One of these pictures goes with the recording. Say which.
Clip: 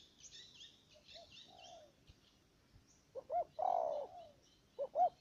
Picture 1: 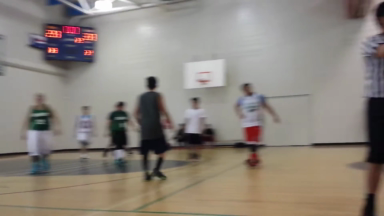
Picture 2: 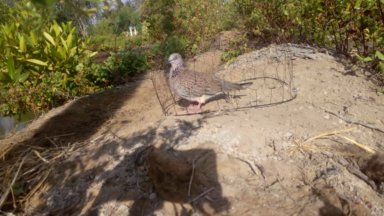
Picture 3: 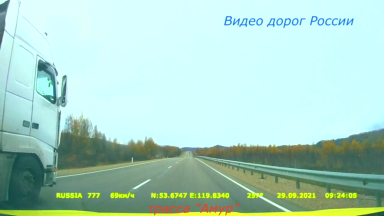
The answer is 2